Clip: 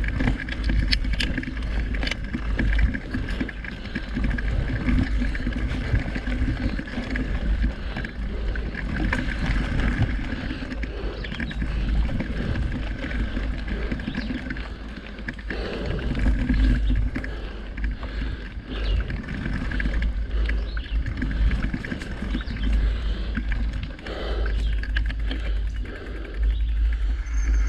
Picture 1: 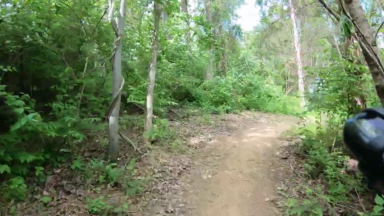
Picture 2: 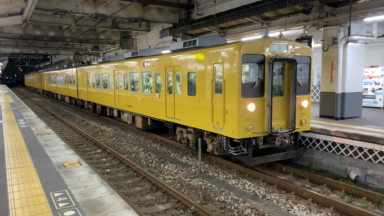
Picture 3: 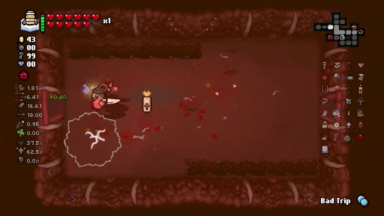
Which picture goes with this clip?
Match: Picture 1